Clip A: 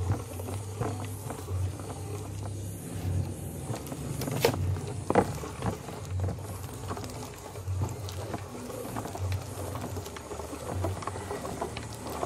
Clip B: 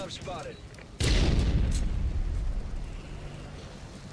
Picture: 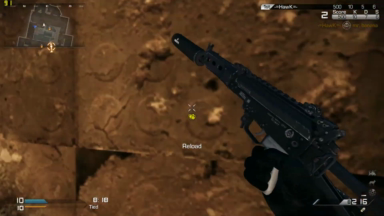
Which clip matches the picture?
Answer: B